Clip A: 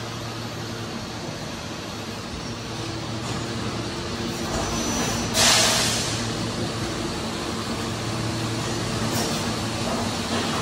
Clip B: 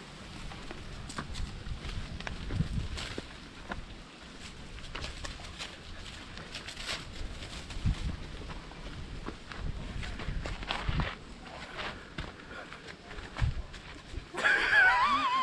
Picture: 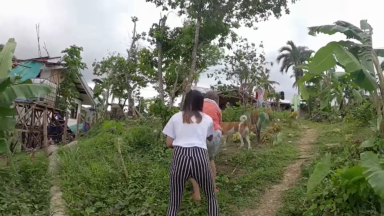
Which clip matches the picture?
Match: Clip B